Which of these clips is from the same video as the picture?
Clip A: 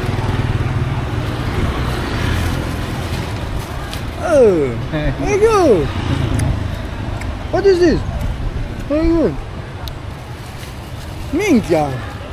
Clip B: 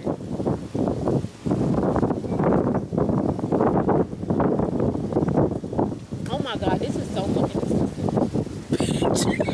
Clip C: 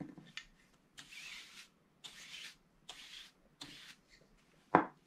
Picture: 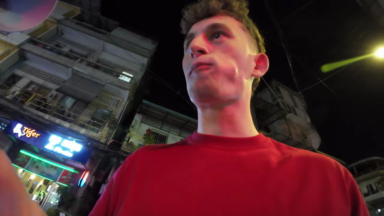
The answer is A